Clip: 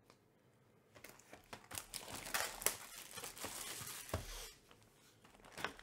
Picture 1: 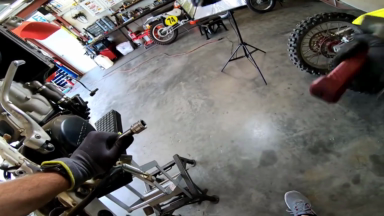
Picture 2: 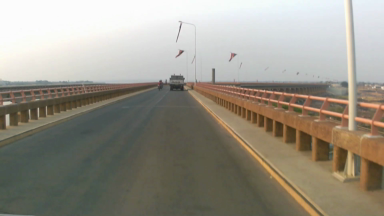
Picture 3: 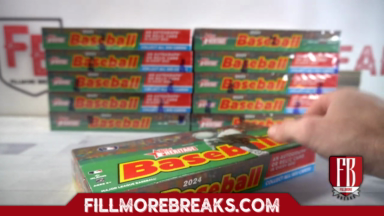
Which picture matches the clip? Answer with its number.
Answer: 3